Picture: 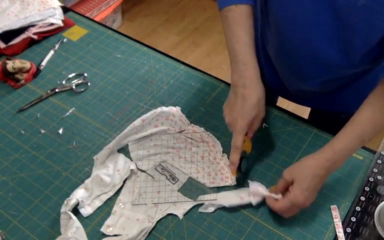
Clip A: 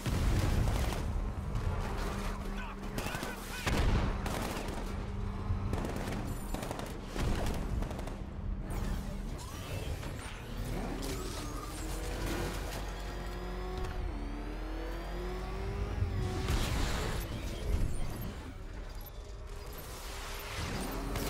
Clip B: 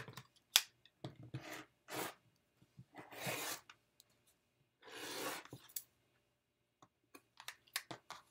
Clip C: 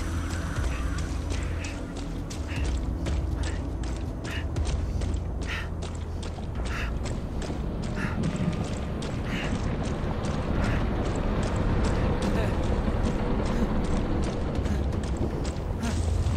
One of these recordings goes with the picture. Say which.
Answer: B